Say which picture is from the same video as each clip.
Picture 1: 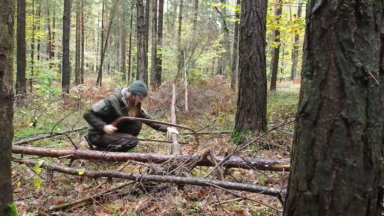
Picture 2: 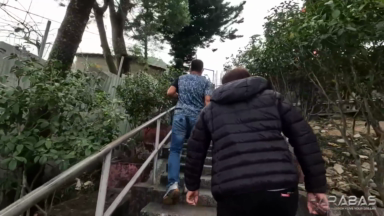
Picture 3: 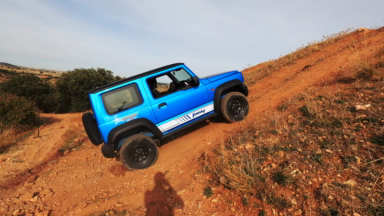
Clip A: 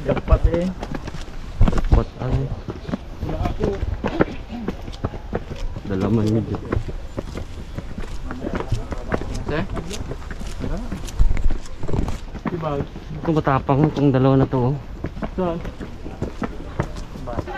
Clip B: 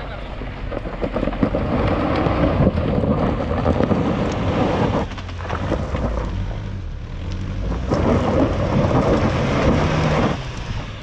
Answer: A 2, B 3